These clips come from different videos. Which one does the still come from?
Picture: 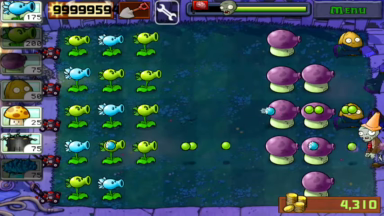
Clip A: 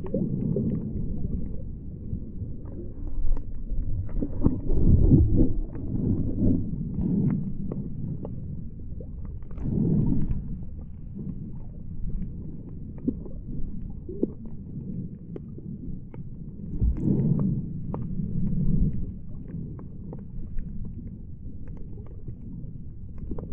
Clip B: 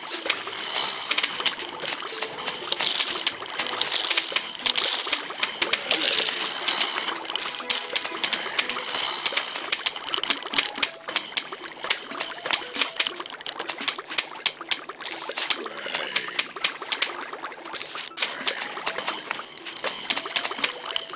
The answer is B